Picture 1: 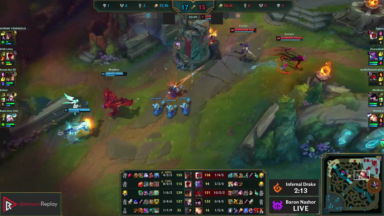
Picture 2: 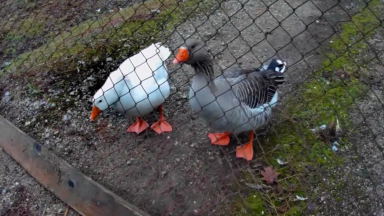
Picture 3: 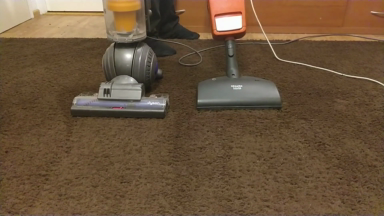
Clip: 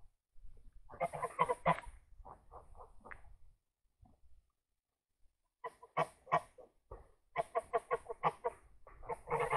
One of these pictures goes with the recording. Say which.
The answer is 2